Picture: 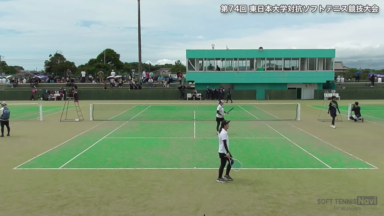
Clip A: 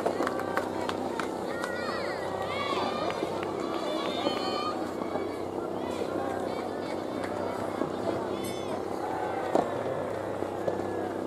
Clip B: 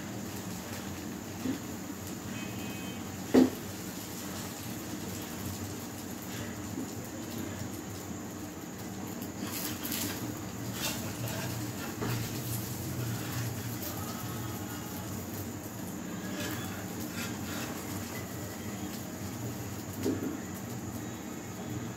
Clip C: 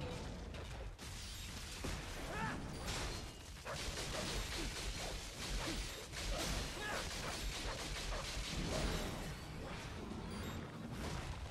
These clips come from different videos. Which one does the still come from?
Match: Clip A